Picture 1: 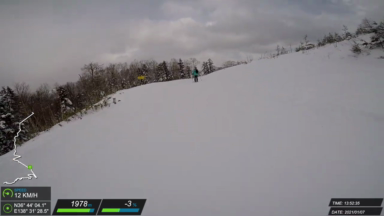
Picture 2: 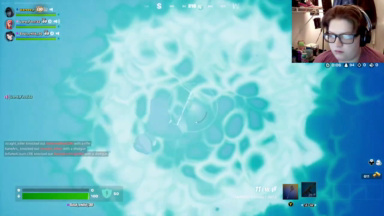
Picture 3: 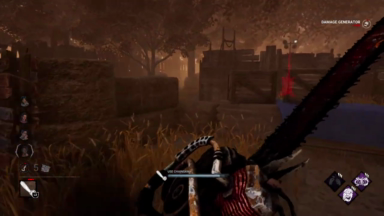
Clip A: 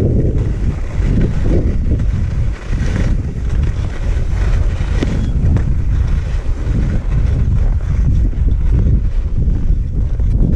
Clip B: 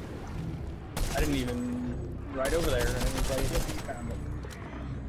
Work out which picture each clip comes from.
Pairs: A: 1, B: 2